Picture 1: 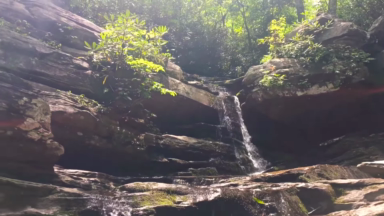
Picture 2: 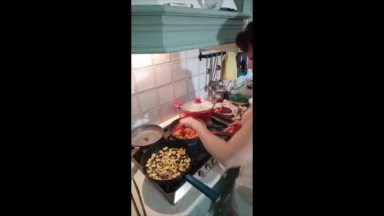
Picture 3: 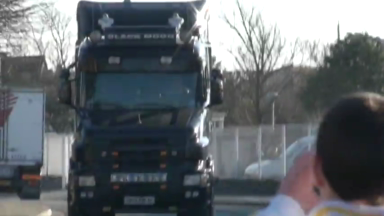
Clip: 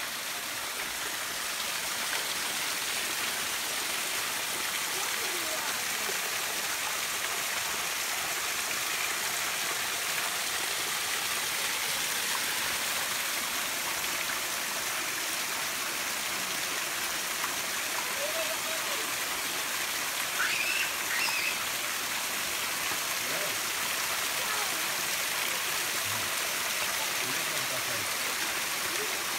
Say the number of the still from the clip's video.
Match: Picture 1